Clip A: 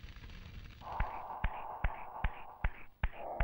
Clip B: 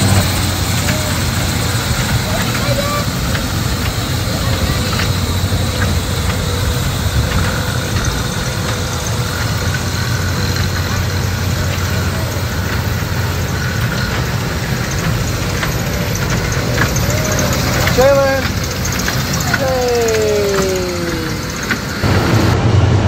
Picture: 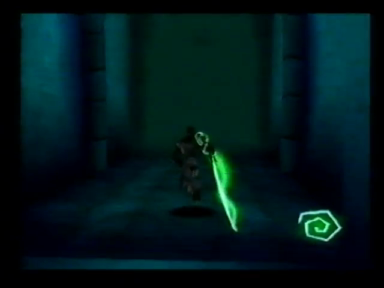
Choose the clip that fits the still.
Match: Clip A